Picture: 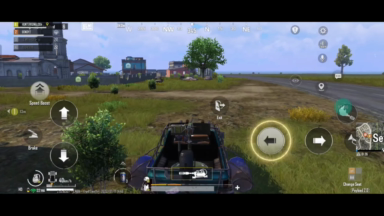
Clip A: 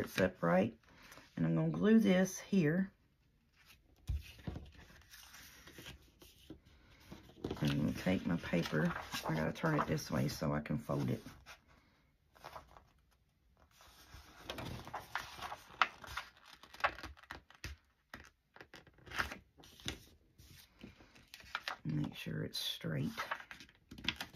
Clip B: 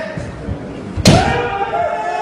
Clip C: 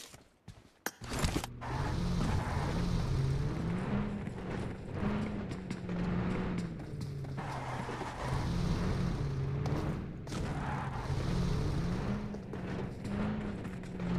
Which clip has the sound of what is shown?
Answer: C